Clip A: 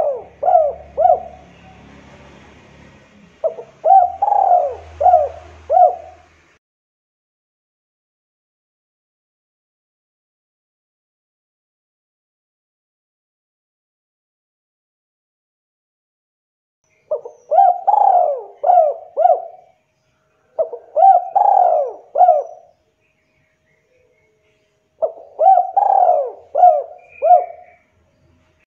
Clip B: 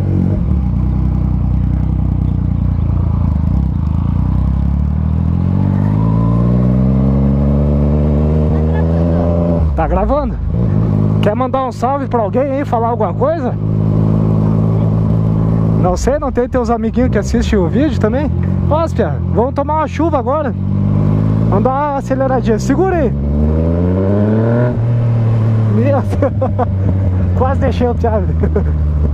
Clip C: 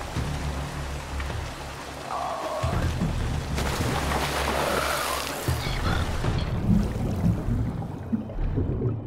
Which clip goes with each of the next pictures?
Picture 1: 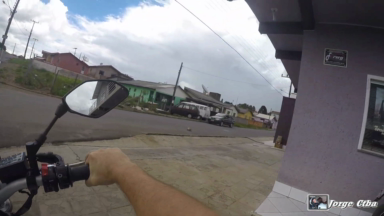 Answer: B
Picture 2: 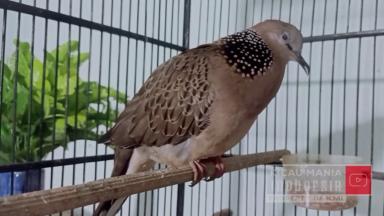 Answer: A